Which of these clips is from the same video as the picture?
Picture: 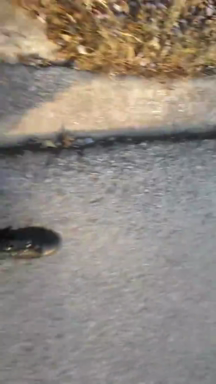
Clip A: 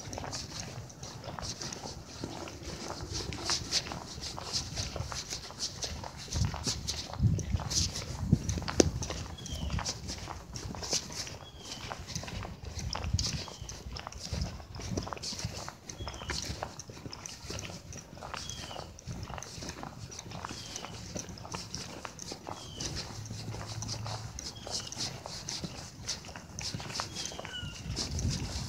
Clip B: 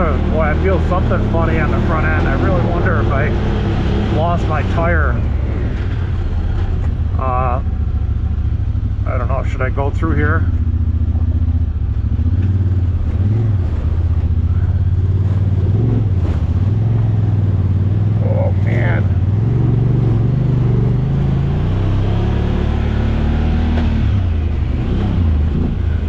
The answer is A